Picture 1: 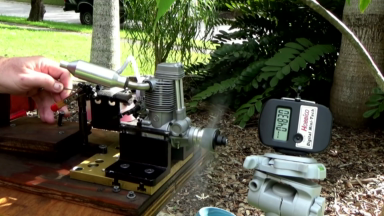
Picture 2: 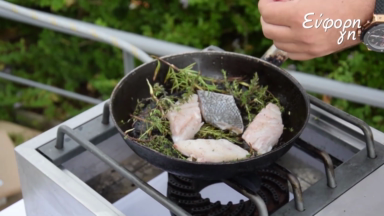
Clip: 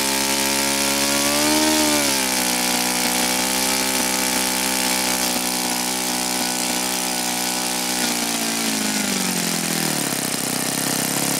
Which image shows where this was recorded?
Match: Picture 1